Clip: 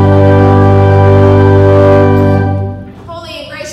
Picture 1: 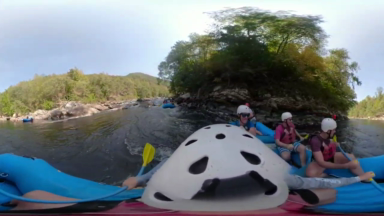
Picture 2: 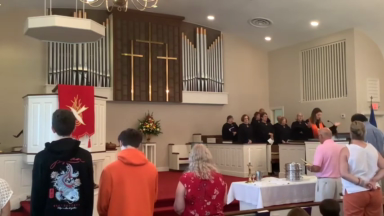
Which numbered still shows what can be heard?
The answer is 2